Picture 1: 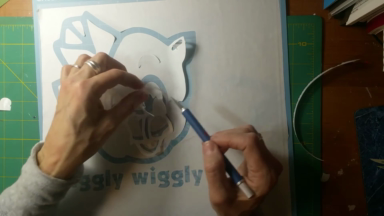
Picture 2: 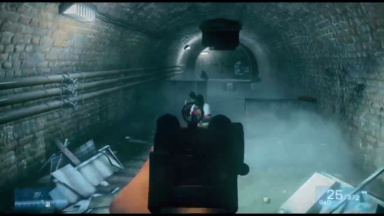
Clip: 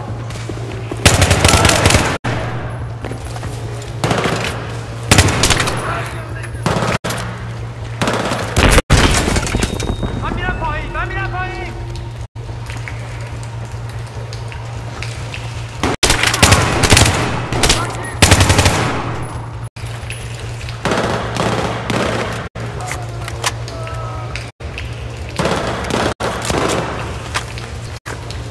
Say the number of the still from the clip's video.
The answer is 2